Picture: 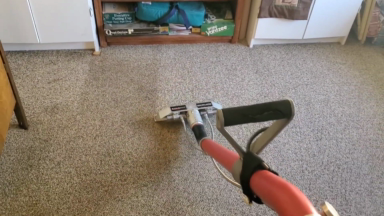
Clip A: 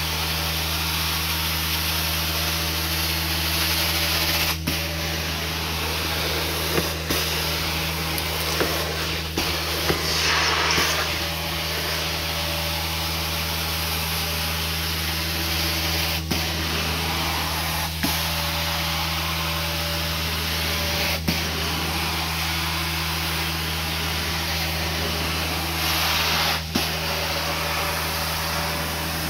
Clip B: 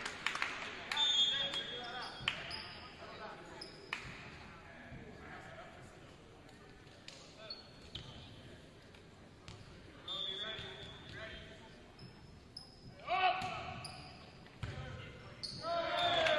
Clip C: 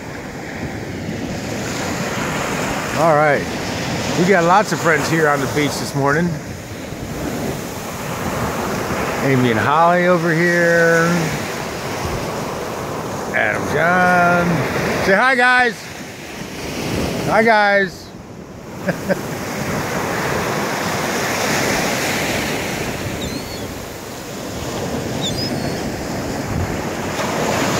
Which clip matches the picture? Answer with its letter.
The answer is A